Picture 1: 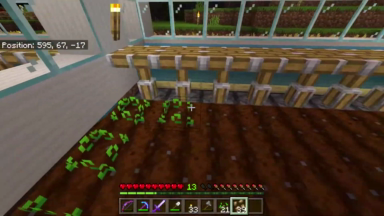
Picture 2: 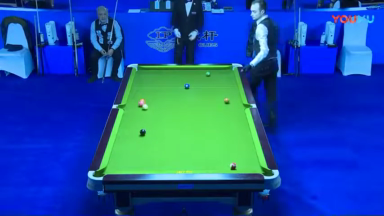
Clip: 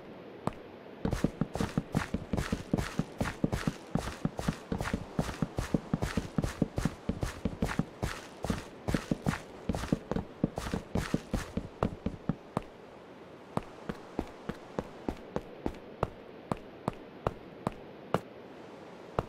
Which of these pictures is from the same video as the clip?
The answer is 1